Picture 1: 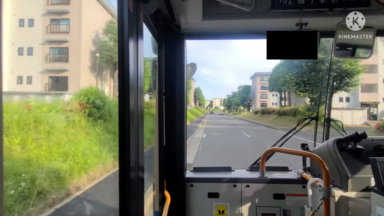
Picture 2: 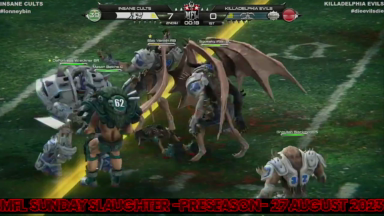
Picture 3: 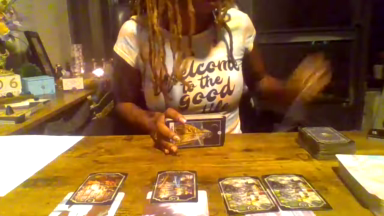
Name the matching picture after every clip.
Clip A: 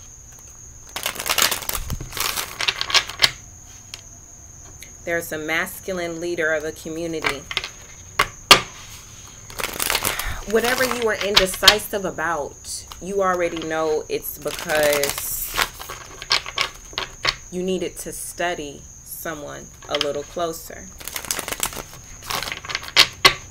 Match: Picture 3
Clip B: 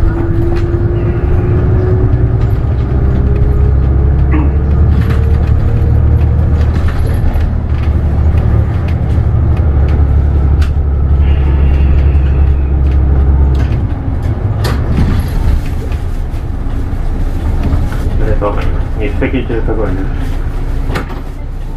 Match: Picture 1